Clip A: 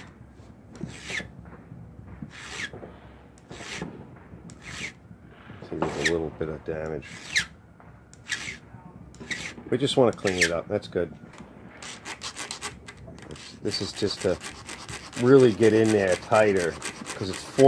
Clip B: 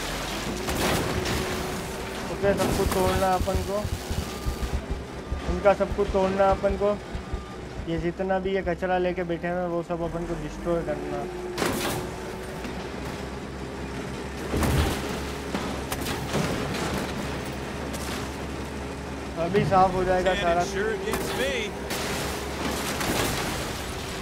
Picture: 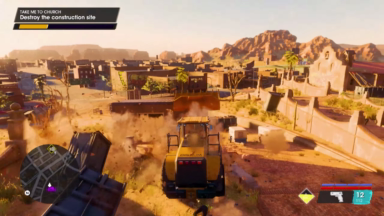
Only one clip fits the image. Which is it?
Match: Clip B